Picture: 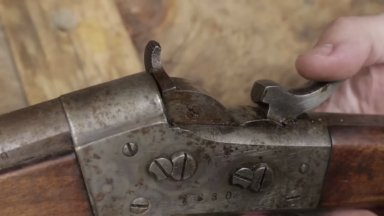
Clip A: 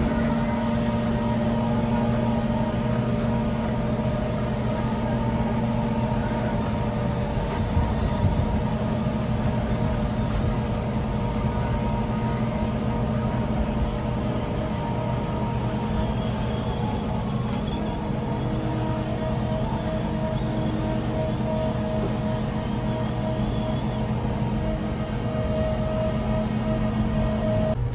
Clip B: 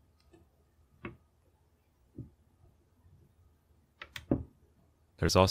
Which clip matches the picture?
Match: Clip B